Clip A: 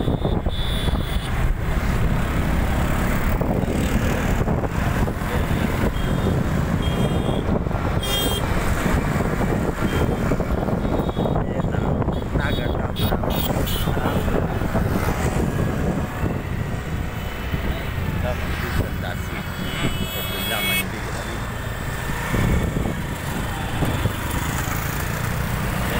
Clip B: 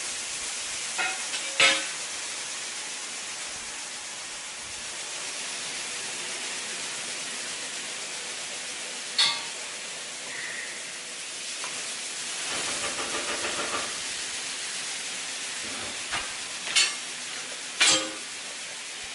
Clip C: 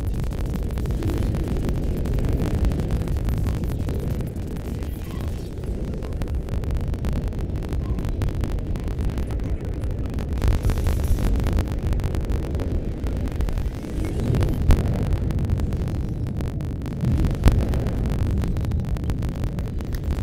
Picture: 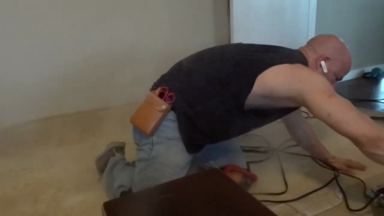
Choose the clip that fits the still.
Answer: B